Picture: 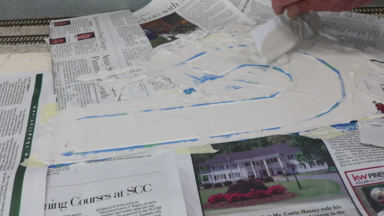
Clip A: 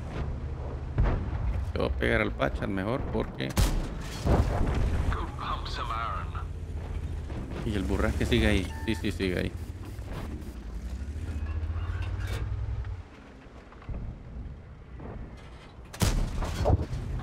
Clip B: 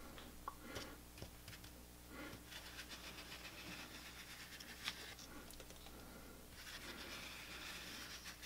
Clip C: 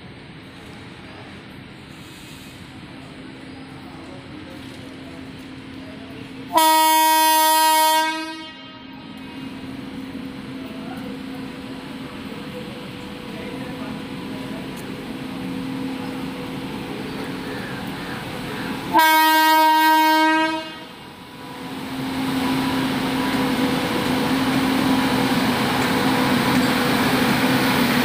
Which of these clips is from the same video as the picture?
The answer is B